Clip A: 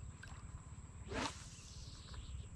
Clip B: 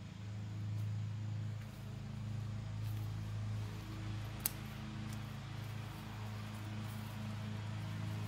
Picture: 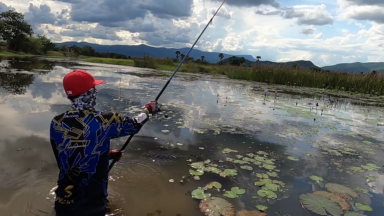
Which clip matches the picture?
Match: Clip A